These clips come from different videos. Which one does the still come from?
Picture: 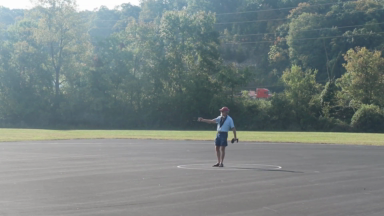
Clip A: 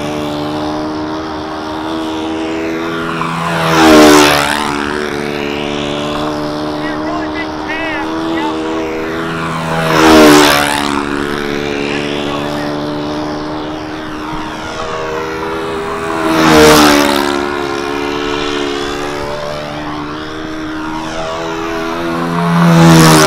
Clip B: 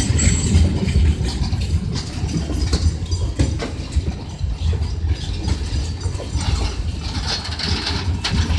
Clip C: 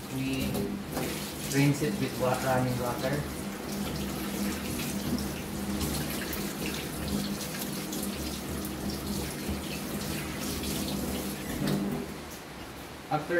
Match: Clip A